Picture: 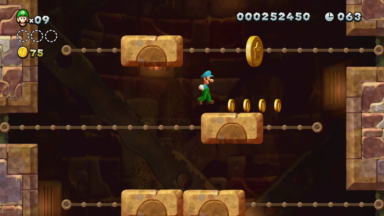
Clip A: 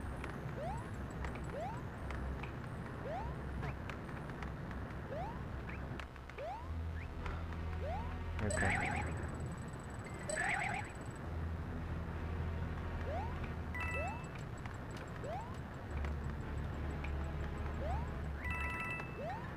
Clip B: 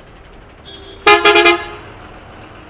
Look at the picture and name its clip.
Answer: A